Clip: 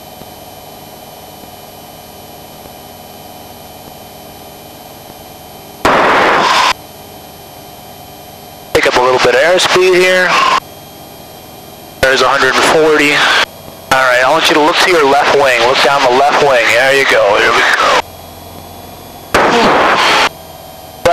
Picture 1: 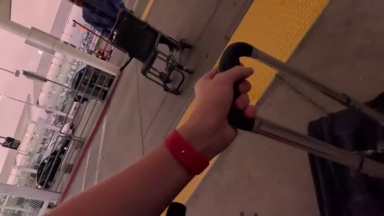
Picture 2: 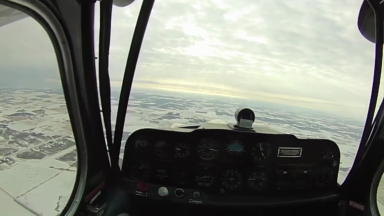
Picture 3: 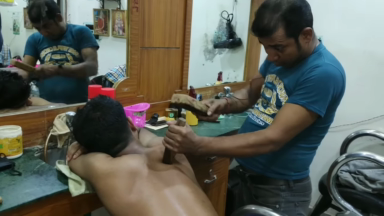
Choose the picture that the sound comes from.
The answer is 2